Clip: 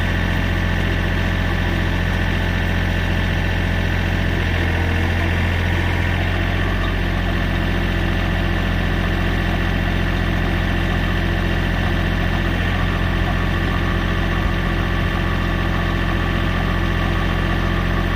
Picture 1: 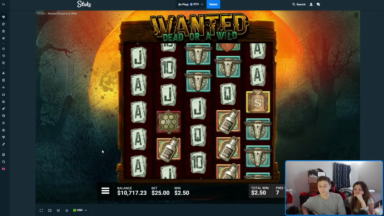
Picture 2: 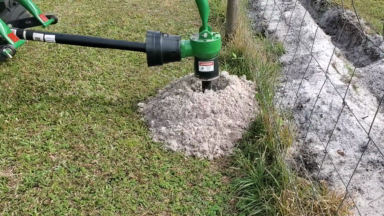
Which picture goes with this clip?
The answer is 2